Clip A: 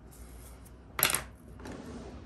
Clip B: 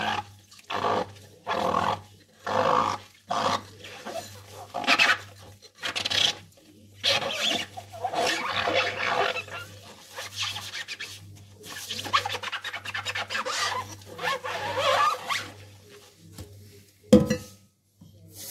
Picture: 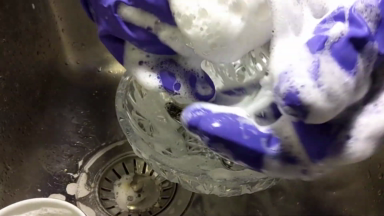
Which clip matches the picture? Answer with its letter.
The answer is B